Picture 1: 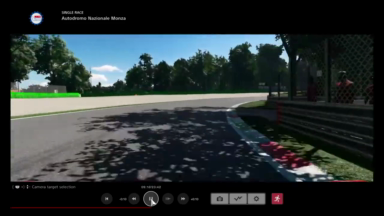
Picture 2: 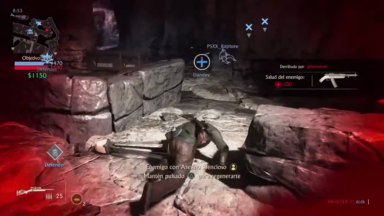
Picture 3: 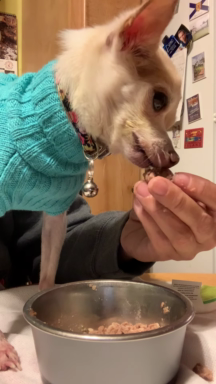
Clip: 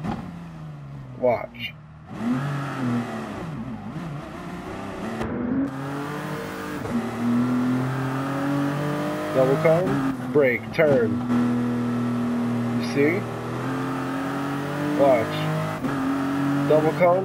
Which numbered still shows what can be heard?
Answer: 1